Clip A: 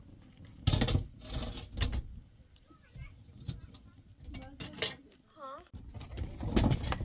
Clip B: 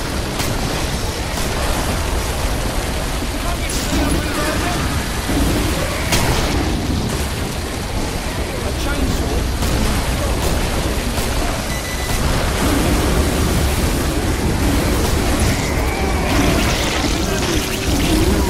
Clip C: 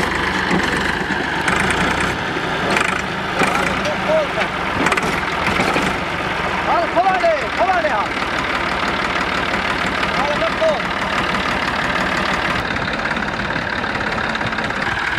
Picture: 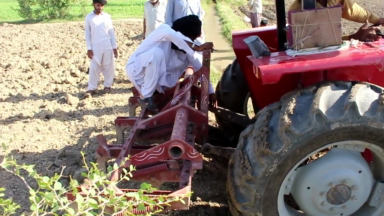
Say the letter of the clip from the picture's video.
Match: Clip C